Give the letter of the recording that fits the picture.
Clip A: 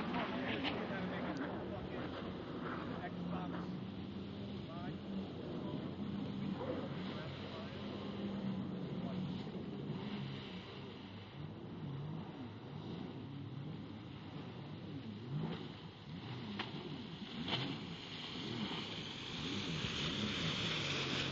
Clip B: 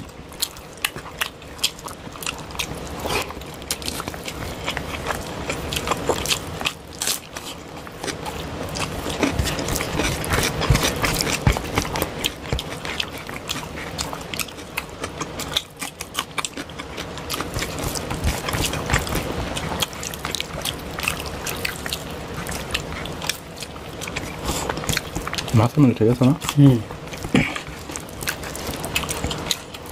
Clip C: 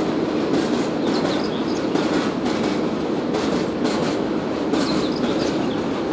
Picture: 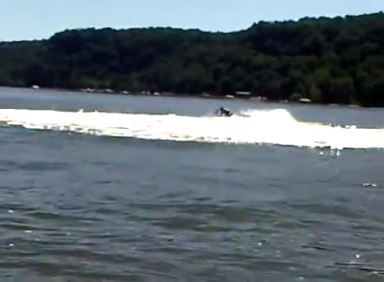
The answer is A